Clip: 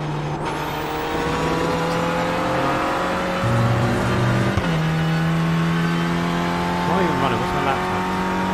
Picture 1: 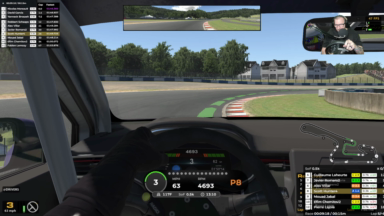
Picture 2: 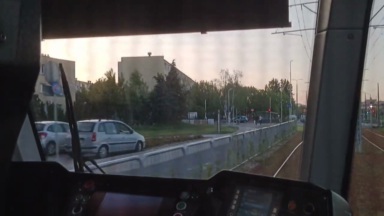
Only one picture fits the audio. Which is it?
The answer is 1